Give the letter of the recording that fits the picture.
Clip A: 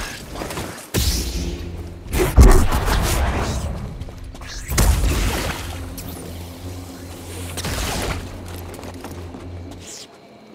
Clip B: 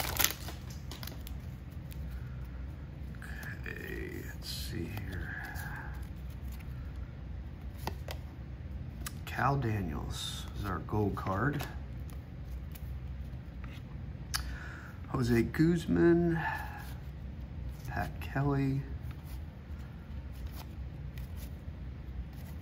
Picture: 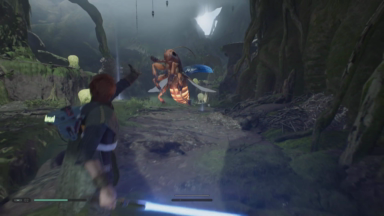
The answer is A